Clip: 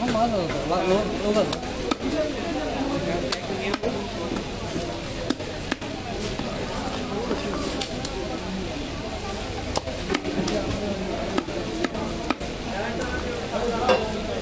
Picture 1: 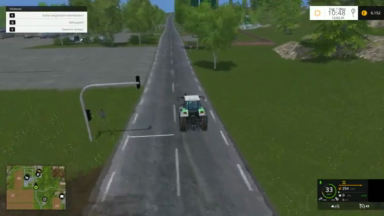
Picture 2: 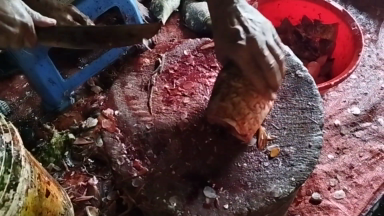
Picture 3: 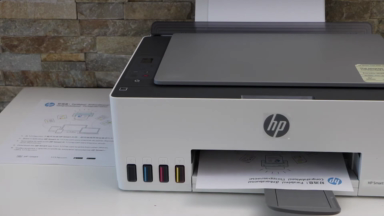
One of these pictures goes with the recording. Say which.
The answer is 2